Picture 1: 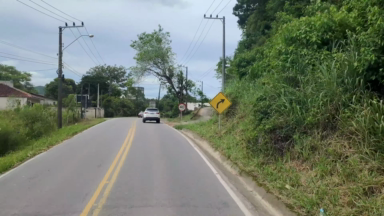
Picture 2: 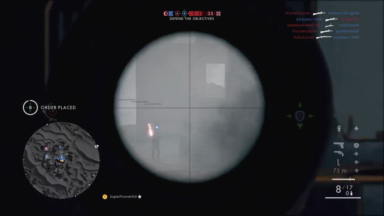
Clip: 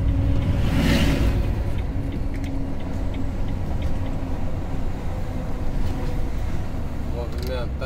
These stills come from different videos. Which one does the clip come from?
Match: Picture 1